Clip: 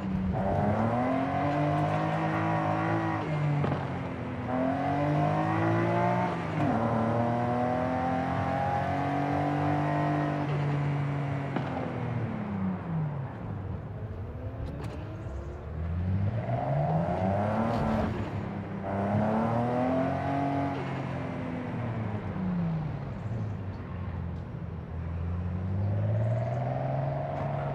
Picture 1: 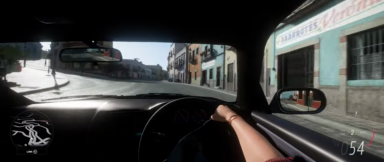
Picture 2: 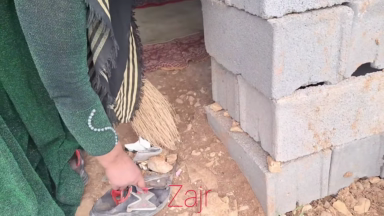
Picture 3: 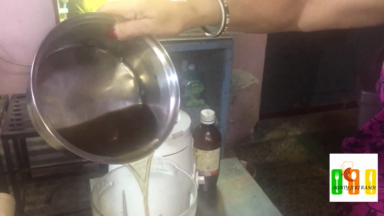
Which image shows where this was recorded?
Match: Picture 1